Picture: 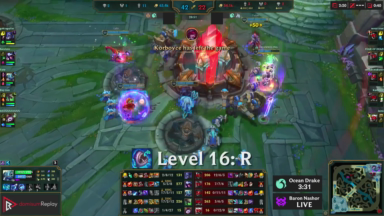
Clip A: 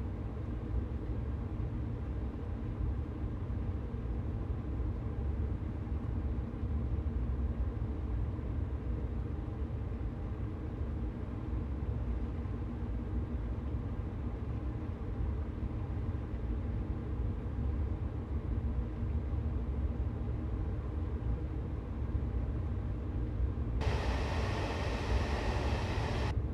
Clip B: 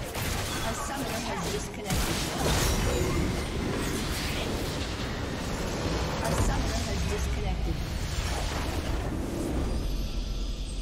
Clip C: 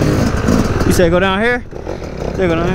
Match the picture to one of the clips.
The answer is B